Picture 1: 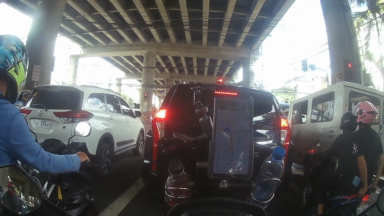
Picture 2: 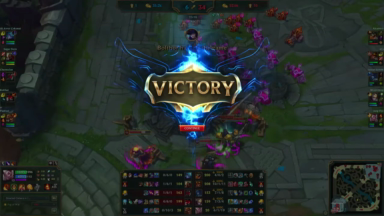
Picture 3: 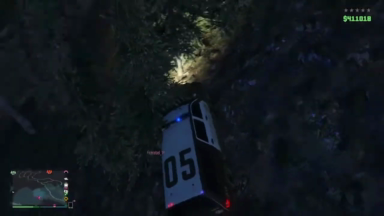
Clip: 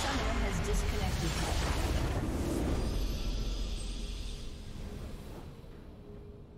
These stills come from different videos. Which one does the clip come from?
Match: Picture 2